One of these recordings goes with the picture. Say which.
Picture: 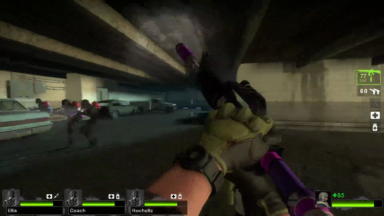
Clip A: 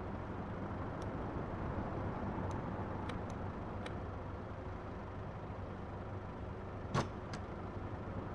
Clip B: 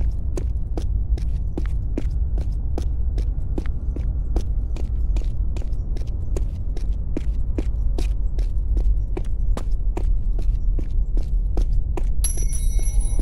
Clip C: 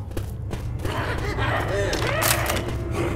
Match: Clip C